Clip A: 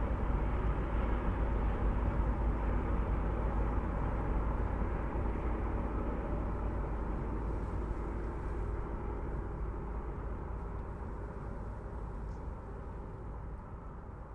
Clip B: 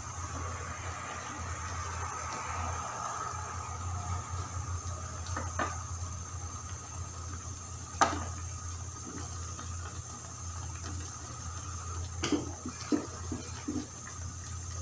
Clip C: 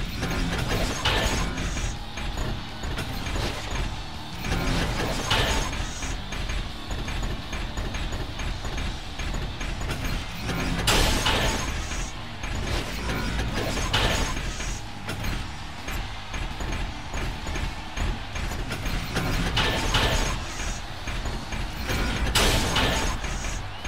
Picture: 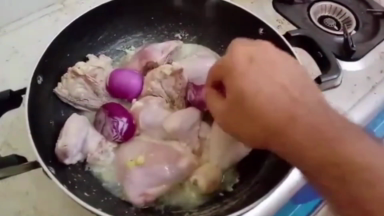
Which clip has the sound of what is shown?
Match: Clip B